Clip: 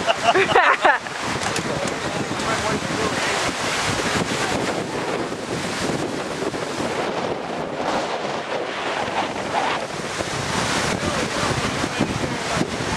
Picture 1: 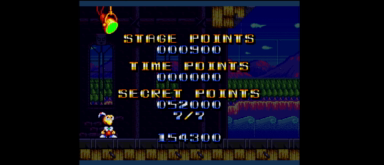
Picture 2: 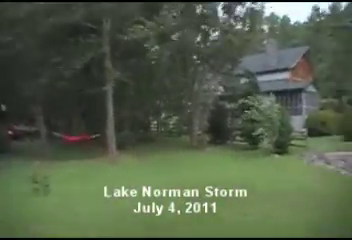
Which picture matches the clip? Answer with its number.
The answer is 2